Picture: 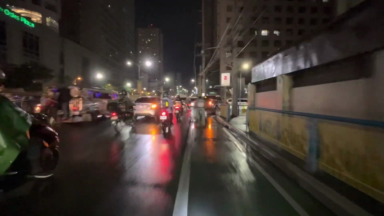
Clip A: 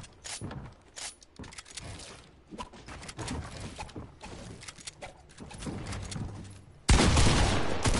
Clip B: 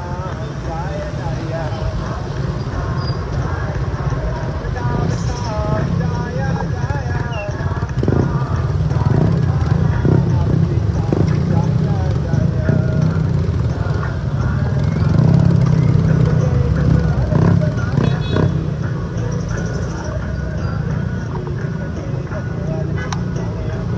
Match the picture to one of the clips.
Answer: B